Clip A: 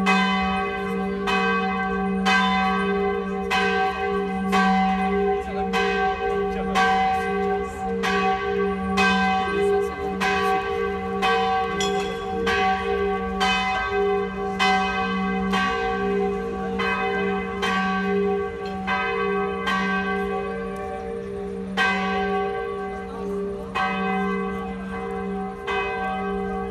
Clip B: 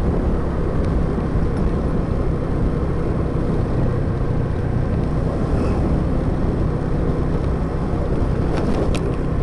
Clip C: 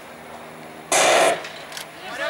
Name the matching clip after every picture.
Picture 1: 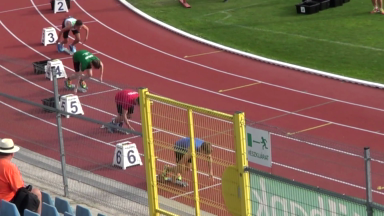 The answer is C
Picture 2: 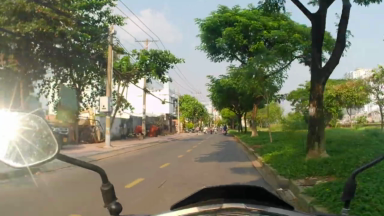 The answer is B